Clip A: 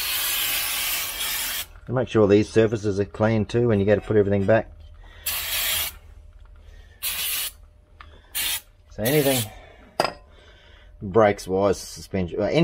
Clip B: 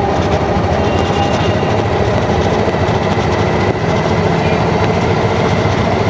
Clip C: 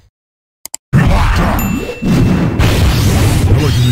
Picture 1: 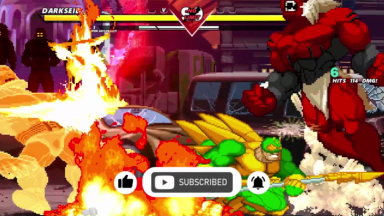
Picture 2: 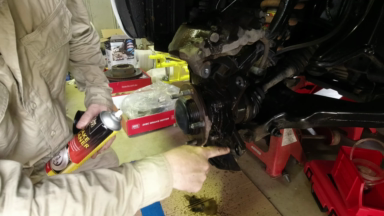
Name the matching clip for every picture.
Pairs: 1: C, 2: A